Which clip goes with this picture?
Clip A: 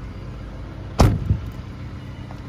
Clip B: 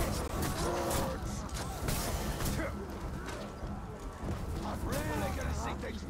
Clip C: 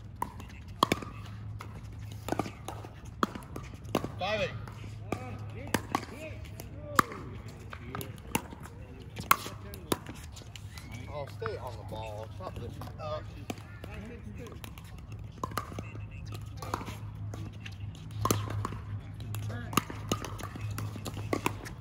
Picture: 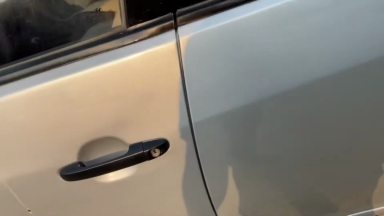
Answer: A